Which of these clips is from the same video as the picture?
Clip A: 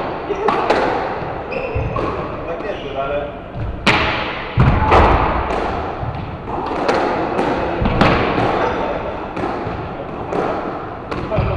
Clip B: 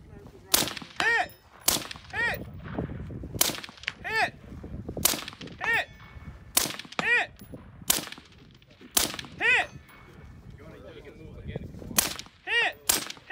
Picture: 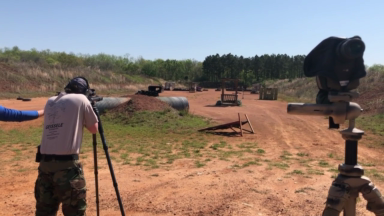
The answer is B